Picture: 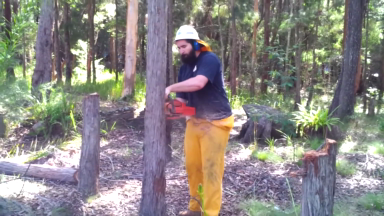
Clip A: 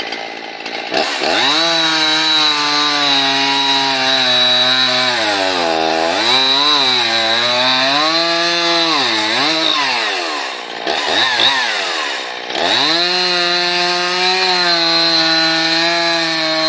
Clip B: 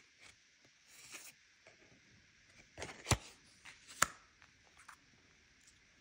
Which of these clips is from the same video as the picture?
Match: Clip A